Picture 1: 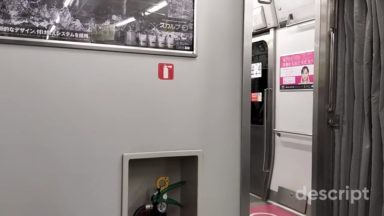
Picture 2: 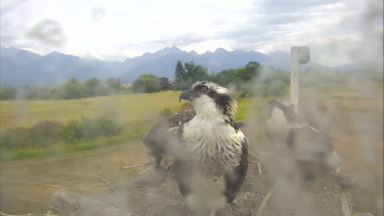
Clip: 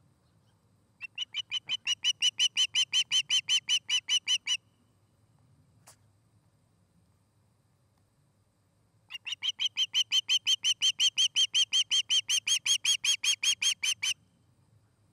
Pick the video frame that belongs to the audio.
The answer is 2